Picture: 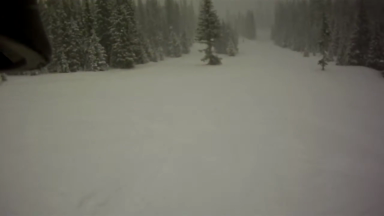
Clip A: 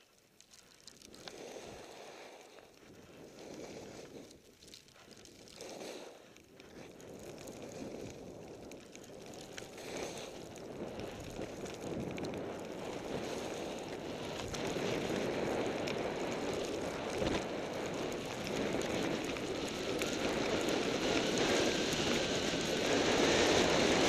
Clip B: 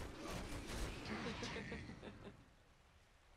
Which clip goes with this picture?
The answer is A